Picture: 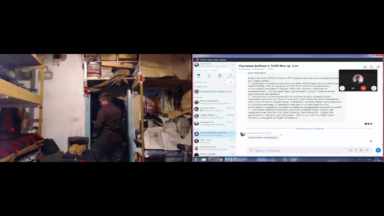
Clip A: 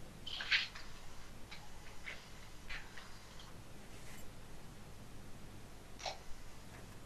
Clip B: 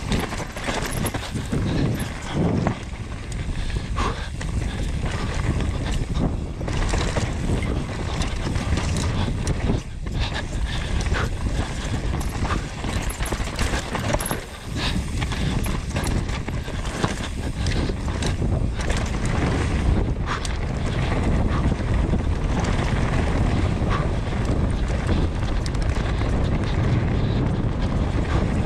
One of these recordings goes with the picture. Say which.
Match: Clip A